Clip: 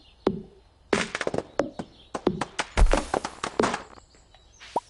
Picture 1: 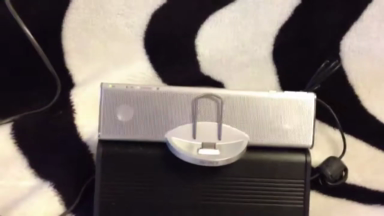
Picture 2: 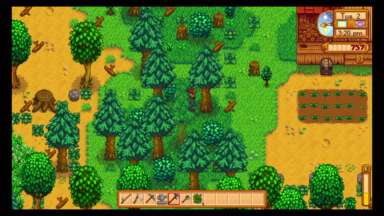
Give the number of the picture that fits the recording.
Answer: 2